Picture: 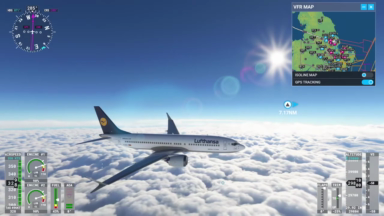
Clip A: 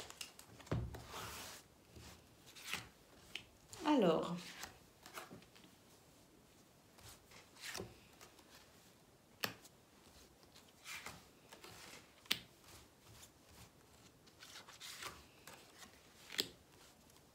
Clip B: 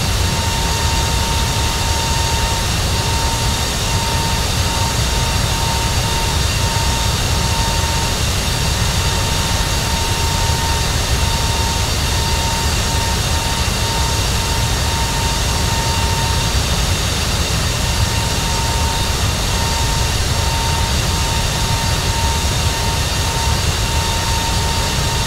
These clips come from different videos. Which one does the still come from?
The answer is B